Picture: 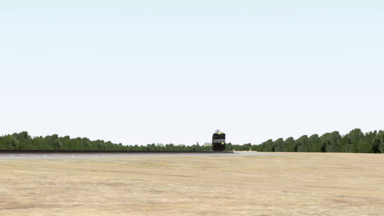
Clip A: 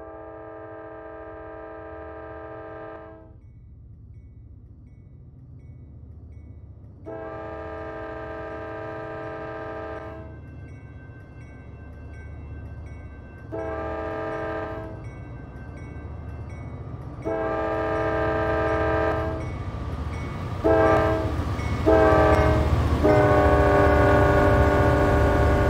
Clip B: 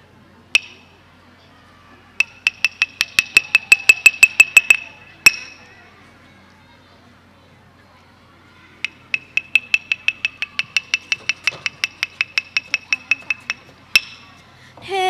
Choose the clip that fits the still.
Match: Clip A